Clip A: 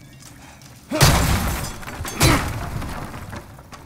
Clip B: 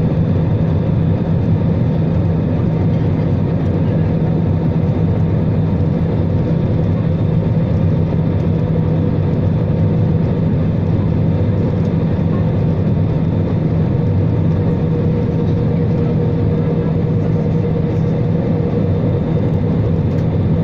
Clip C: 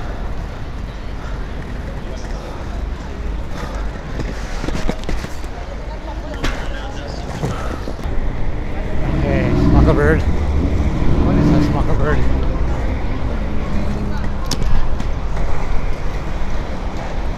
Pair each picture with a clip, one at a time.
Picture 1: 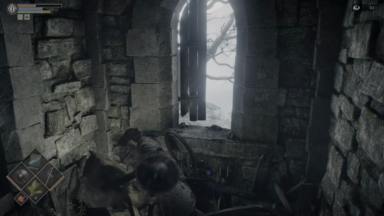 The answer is A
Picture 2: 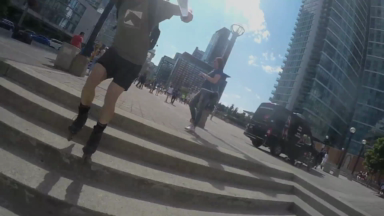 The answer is C